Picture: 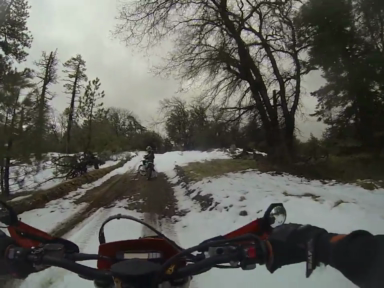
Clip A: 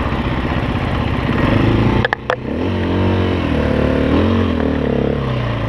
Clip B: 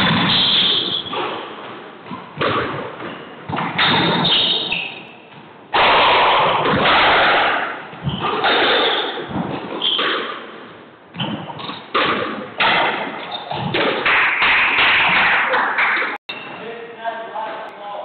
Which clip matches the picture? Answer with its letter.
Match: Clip A